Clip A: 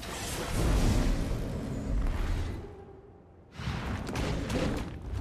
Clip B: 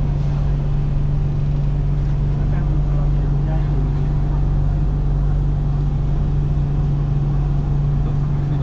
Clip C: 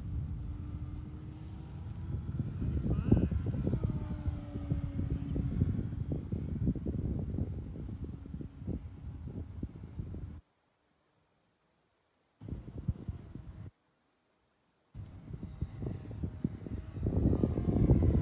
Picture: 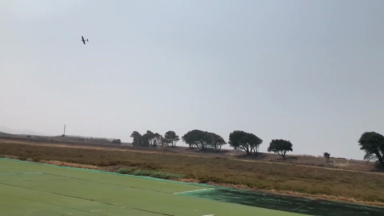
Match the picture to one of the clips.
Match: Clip C